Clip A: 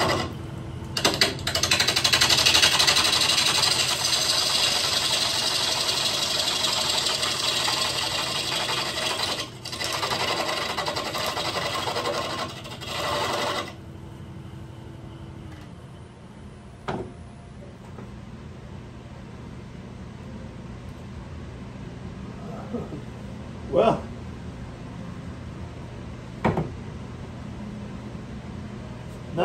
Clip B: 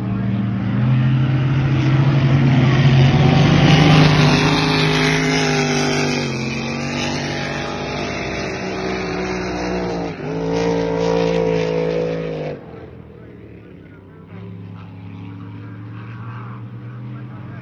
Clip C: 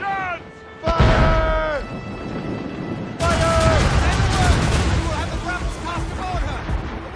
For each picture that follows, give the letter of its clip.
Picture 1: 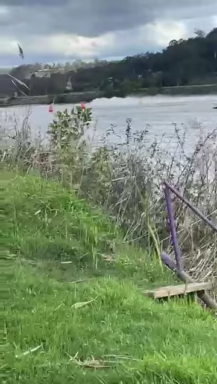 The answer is B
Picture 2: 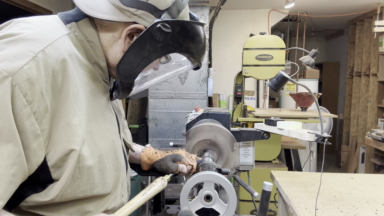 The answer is A